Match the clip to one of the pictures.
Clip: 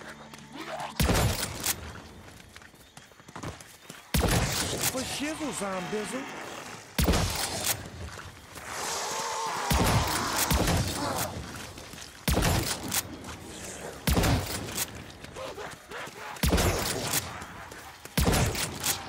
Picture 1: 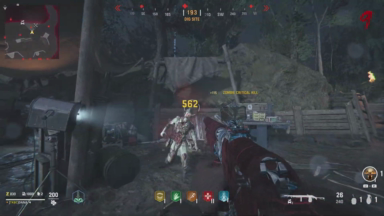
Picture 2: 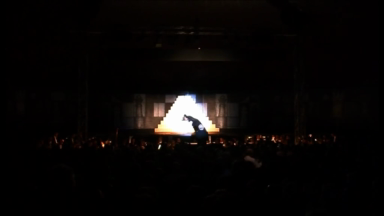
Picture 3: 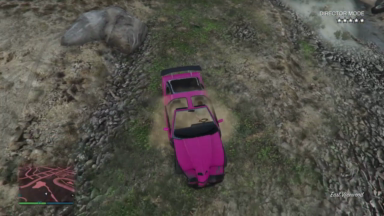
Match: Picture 1